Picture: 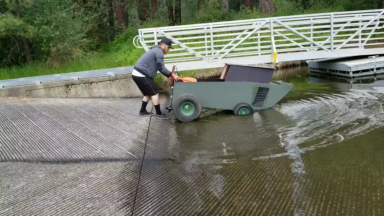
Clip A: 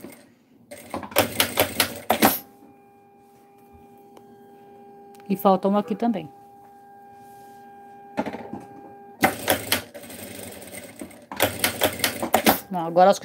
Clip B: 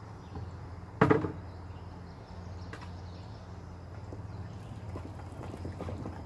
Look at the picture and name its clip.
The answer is B